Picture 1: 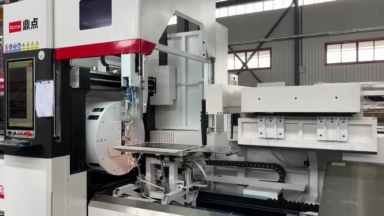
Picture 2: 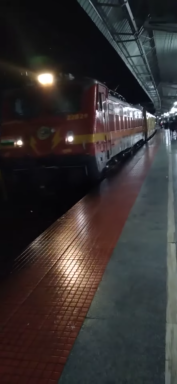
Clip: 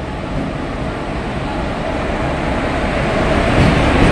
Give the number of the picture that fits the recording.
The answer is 2